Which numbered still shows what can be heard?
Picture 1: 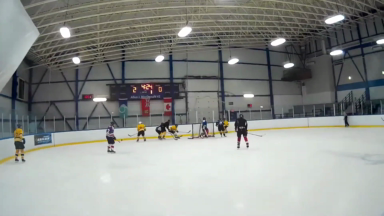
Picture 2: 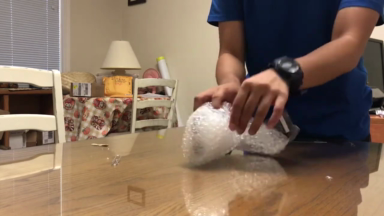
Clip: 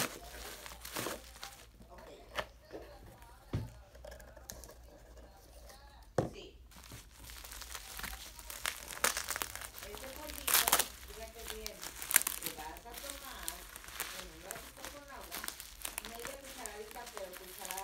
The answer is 2